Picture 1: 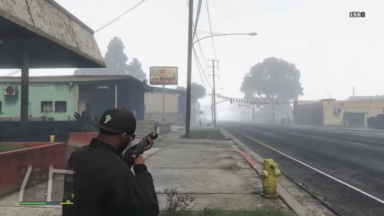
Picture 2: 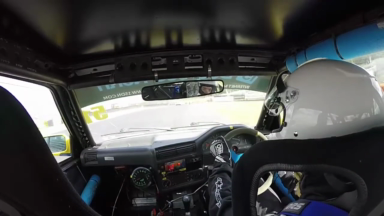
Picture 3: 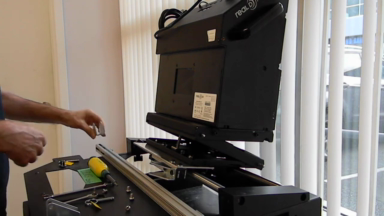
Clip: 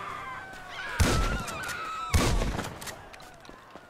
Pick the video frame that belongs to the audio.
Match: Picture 1